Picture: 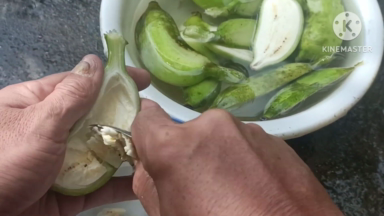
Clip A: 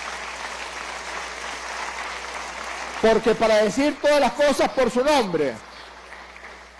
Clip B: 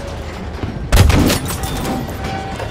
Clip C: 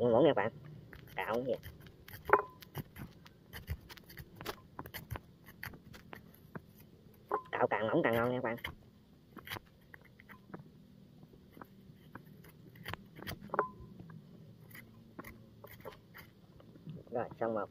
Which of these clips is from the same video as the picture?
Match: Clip C